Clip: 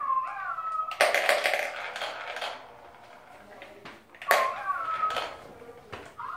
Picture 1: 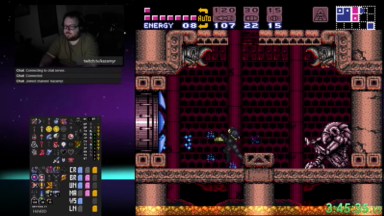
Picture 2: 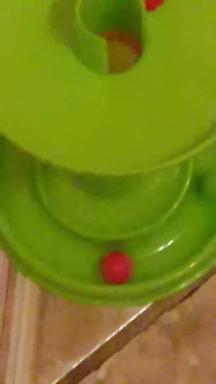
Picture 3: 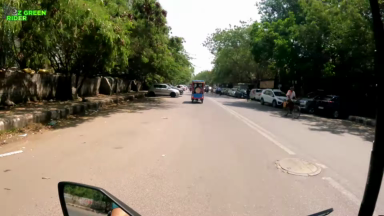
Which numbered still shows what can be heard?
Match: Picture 2